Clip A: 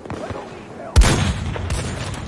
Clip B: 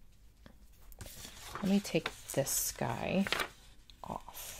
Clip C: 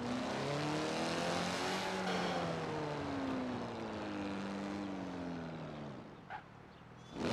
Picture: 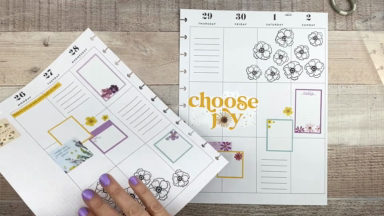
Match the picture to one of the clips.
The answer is B